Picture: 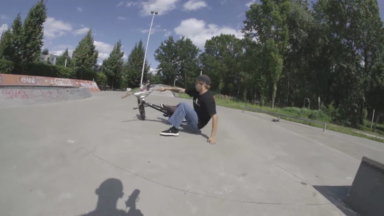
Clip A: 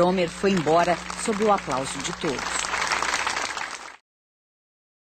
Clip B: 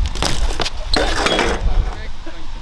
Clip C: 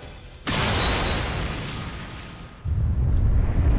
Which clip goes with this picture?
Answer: B